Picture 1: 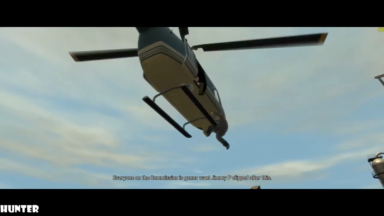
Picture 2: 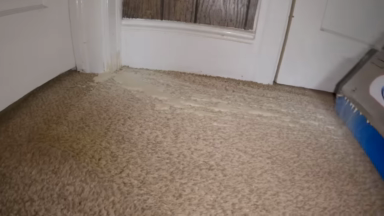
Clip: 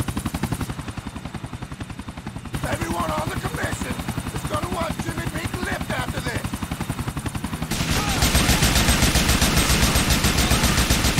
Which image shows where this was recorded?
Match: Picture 1